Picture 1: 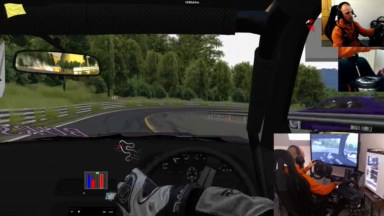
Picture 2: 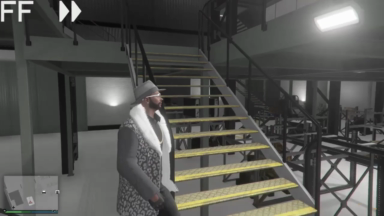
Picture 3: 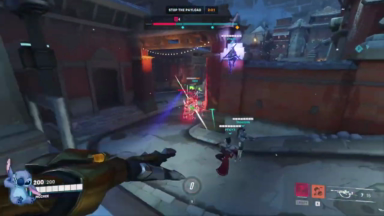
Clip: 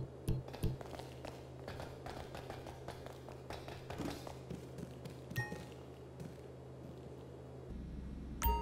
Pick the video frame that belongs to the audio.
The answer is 2